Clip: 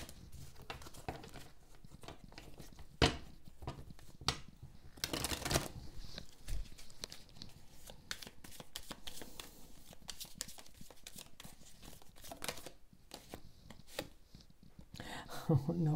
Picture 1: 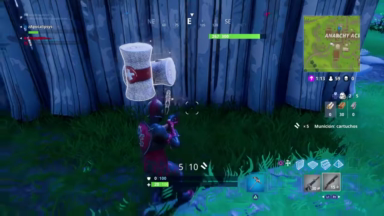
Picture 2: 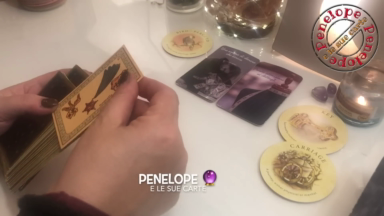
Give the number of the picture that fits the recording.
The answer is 2